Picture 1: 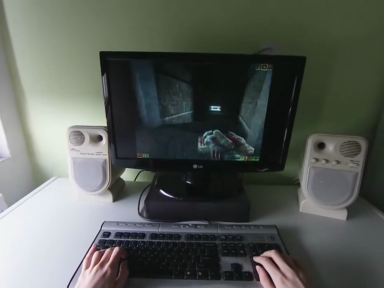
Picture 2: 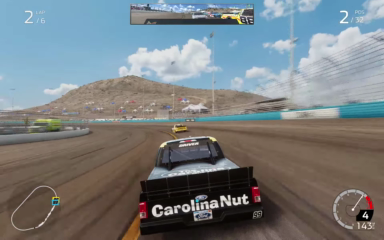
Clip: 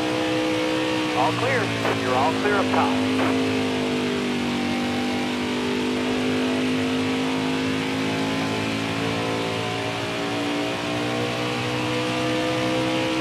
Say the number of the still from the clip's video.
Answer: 2